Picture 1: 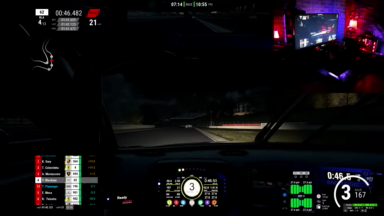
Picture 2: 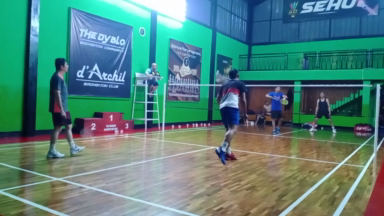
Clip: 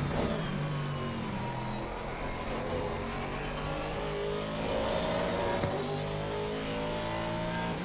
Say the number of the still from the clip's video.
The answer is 1